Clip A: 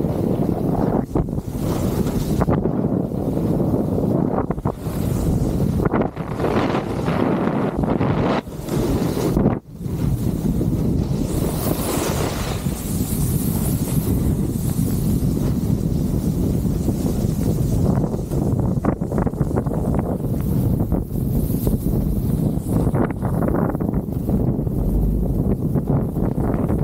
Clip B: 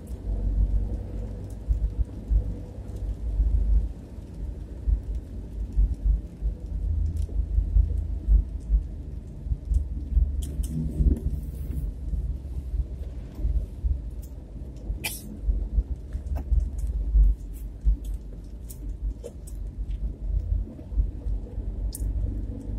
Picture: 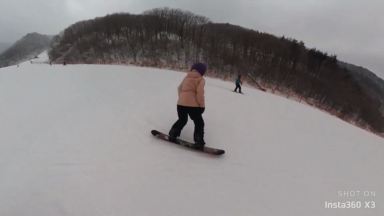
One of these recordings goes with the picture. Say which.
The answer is A